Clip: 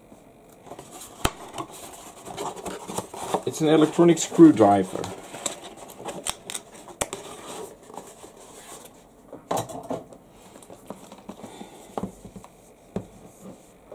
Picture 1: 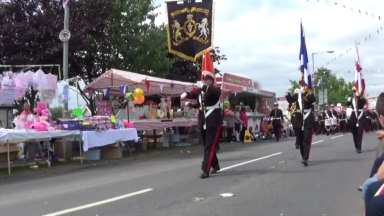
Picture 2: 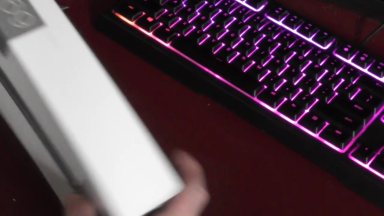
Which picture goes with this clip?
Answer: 2